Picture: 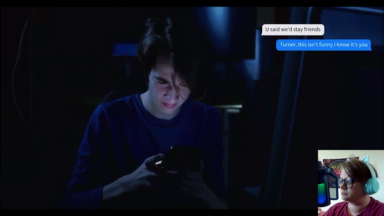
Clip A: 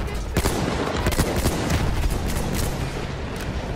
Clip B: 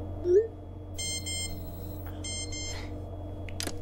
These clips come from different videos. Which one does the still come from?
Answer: B